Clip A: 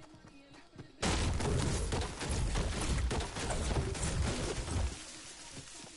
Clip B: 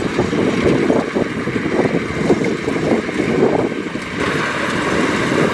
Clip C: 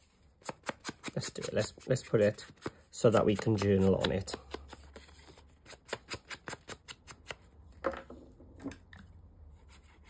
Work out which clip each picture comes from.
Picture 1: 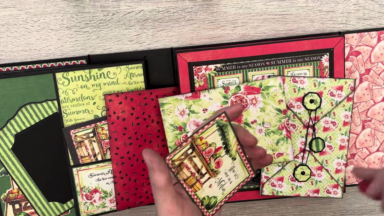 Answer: C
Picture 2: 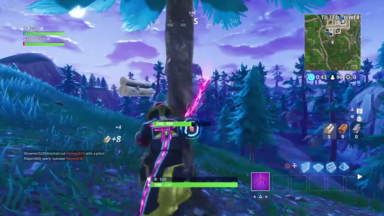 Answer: A